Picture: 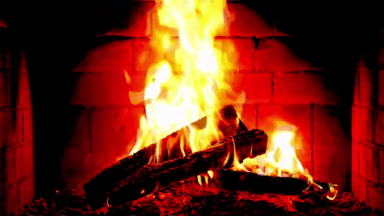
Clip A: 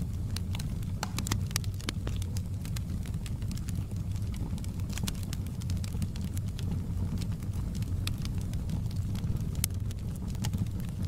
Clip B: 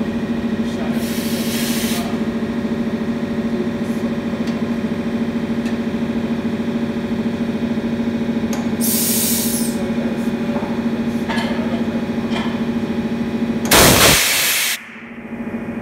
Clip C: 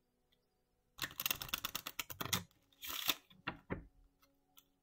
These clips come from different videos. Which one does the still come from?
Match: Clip A